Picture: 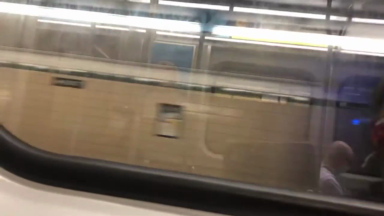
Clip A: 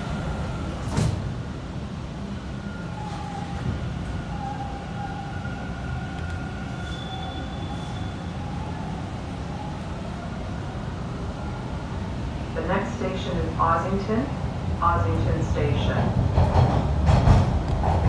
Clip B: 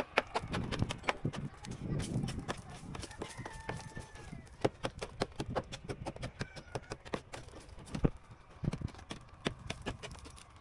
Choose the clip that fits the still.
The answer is A